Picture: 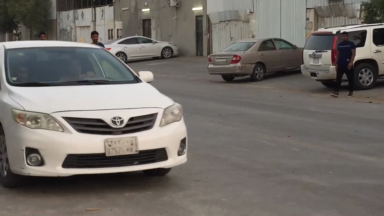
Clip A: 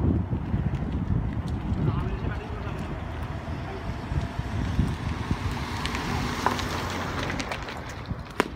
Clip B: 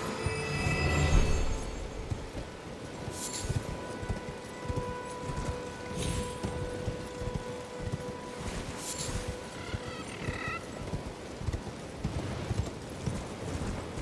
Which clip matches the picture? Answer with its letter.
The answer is A